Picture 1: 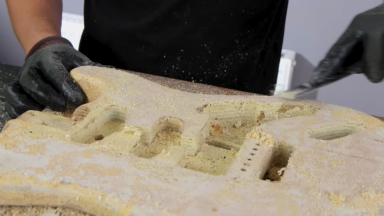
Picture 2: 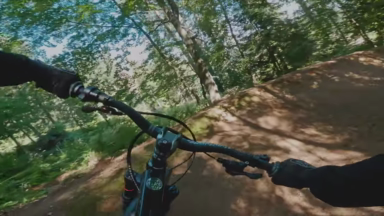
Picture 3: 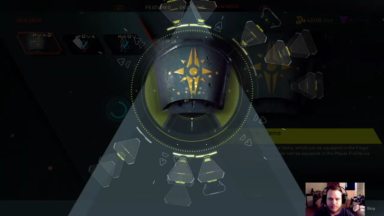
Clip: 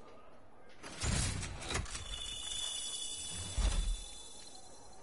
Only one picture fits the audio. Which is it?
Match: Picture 3